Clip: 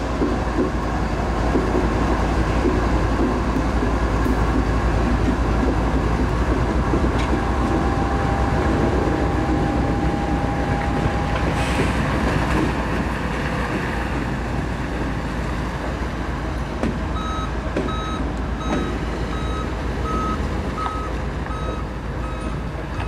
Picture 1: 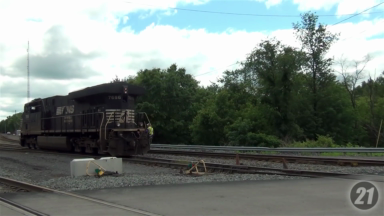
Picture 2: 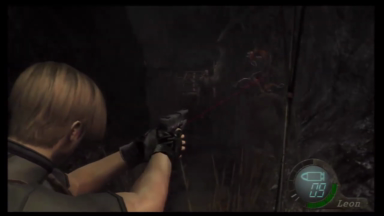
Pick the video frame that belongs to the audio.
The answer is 1